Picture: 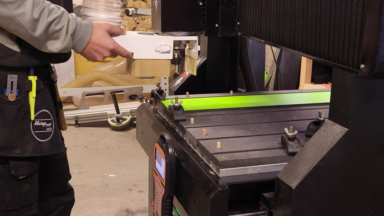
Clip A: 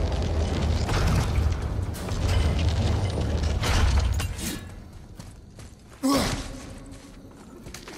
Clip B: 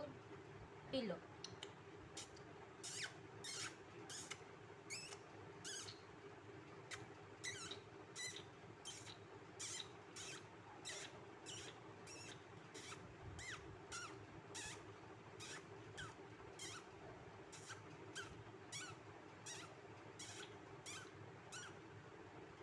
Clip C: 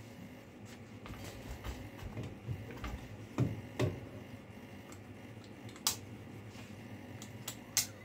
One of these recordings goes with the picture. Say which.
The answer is C